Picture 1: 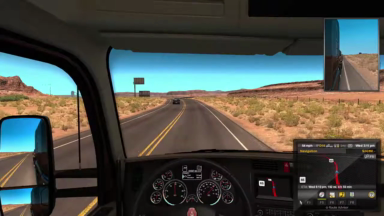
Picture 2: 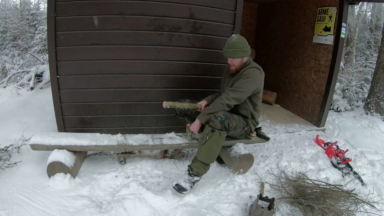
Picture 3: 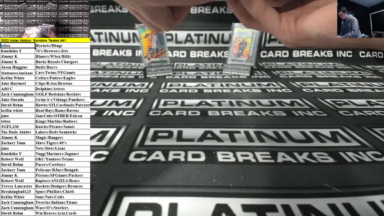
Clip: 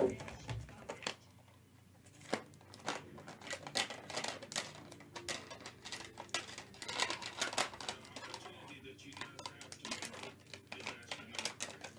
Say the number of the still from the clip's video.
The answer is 3